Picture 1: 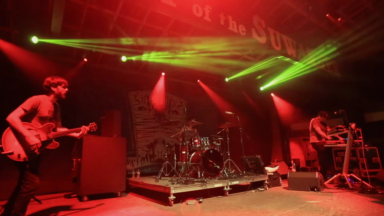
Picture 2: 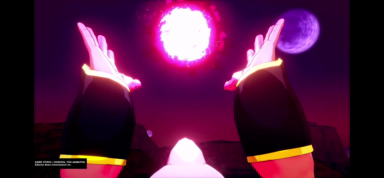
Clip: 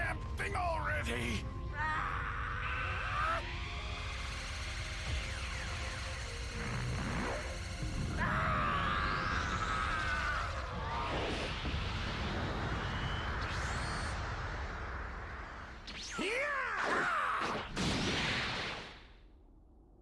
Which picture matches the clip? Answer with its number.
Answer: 2